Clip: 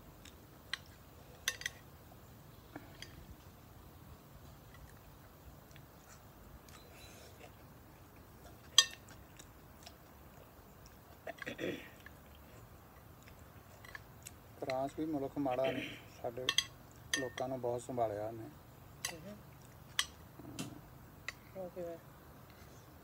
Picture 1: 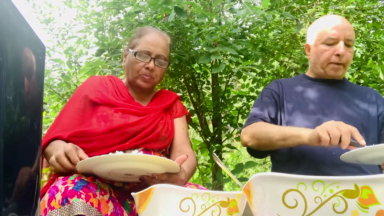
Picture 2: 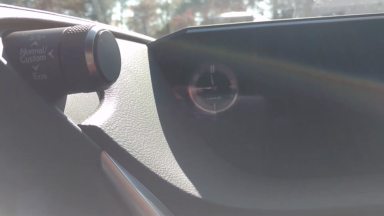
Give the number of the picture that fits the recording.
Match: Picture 1